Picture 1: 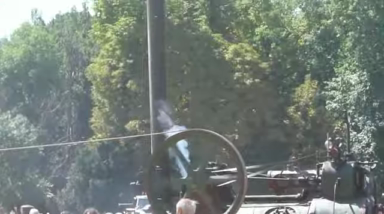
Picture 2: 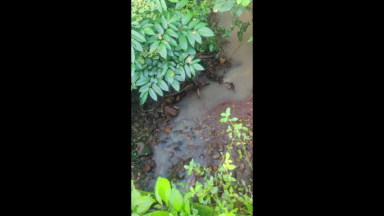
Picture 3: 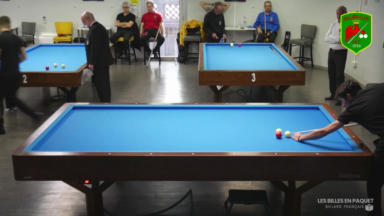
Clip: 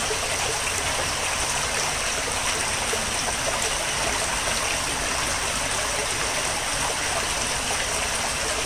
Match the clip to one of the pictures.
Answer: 2